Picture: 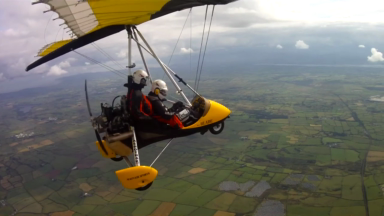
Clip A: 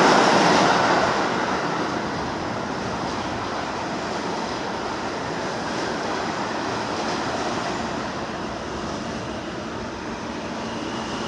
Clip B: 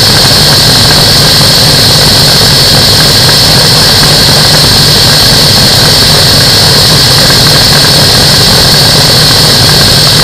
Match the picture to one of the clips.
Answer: B